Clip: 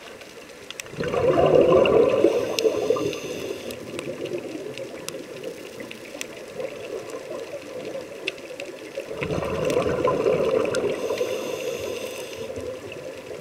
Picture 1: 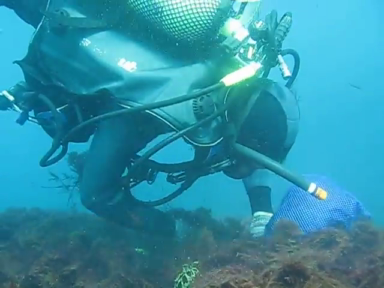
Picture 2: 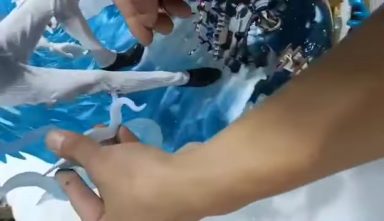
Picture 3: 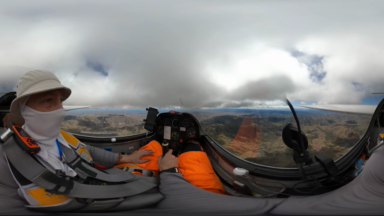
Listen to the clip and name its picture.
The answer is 1